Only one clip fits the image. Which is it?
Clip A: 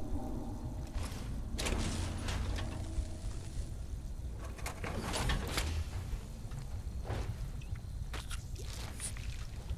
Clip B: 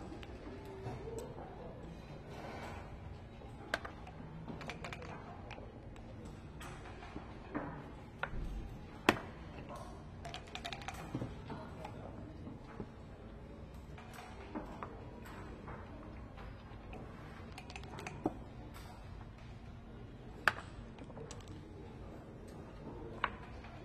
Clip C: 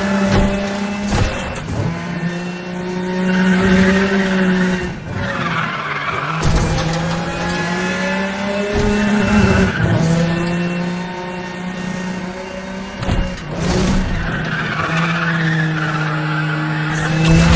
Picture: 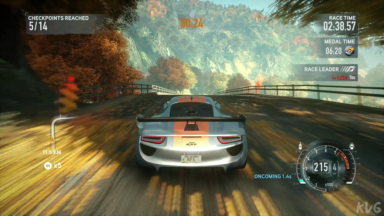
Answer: C